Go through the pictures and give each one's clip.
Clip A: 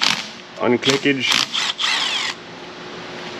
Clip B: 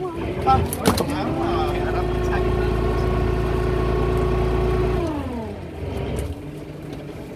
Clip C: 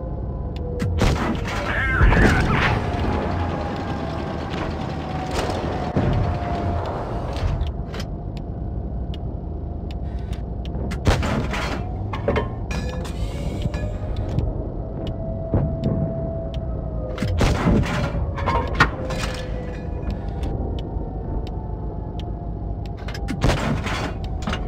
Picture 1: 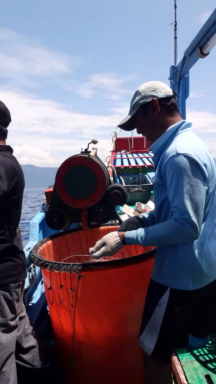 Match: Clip B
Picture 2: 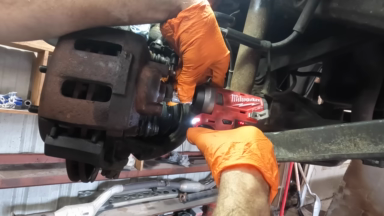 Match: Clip A